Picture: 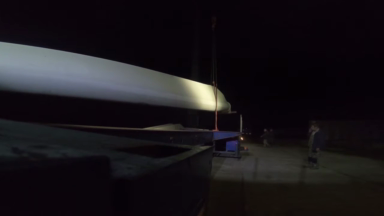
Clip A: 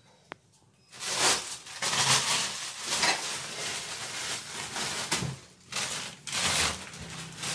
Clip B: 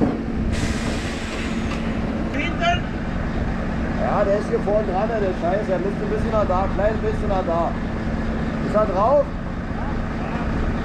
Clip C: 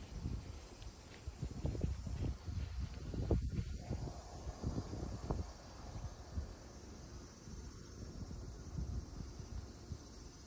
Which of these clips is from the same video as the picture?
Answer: B